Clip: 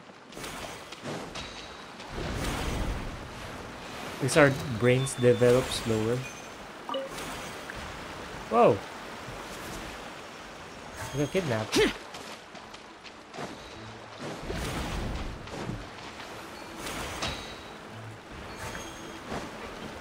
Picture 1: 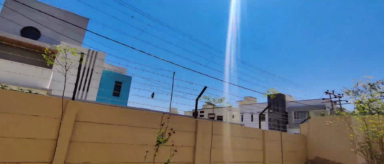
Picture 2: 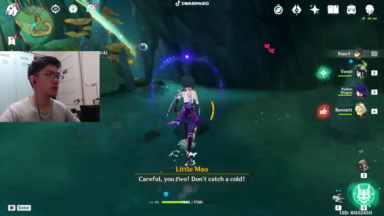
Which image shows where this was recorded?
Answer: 2